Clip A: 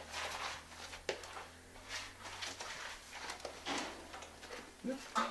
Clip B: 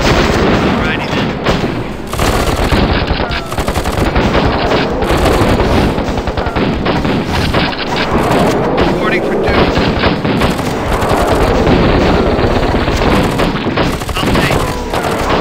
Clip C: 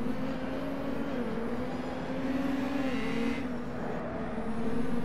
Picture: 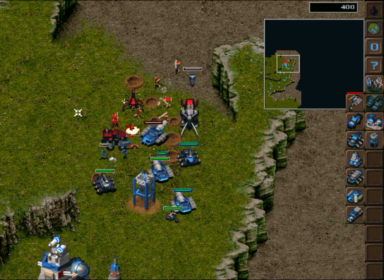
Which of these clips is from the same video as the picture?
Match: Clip B